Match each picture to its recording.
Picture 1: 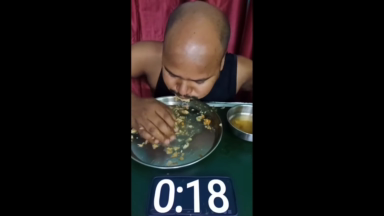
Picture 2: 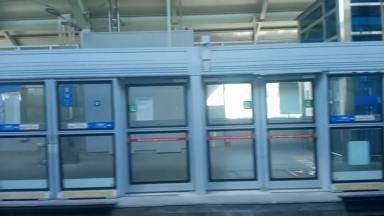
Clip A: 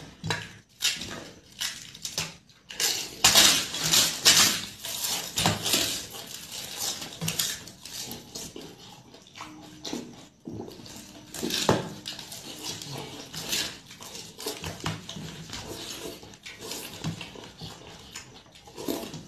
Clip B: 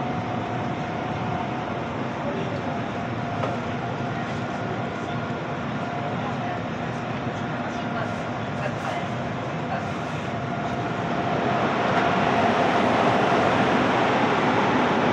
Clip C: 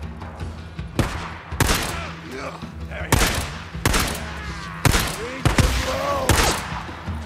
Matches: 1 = A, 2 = B